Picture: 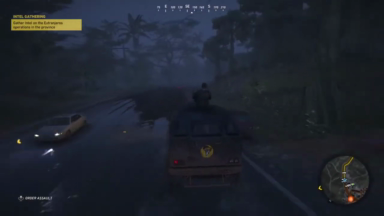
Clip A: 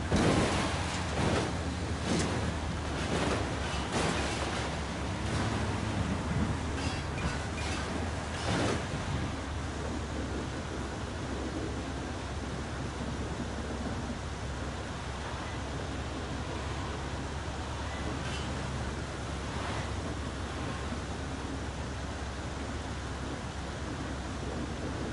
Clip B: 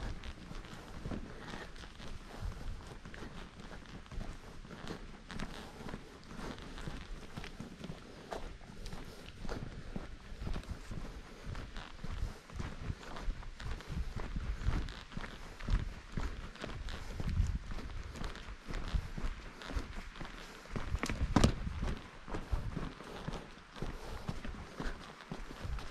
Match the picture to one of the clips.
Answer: A